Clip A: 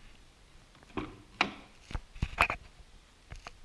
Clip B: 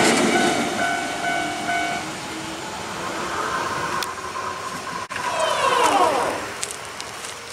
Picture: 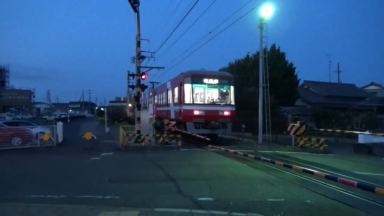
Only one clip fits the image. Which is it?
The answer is B